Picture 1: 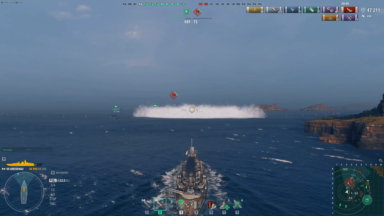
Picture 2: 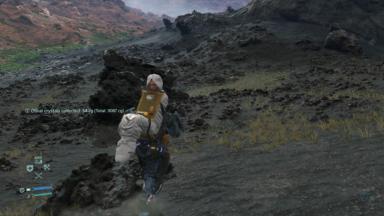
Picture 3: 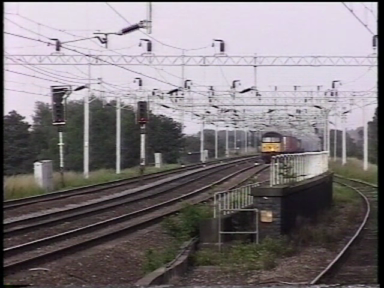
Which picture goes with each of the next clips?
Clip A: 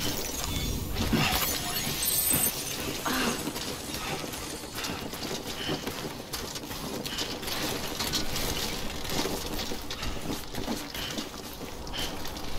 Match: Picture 2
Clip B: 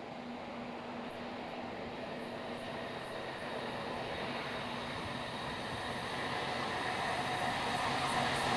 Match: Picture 3